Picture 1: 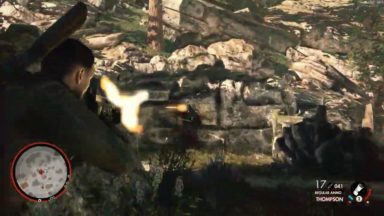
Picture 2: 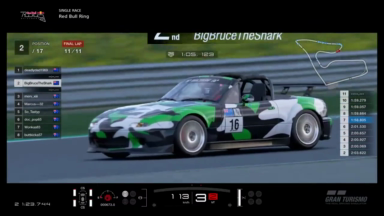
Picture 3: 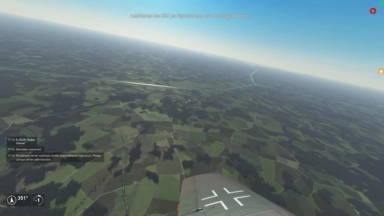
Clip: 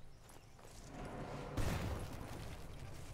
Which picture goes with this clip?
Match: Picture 1